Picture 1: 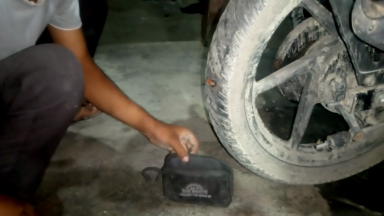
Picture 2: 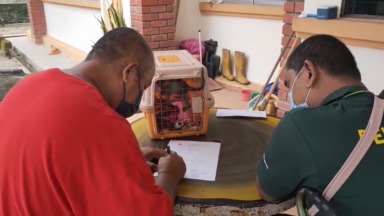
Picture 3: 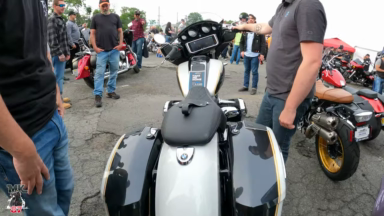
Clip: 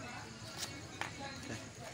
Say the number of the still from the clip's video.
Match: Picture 1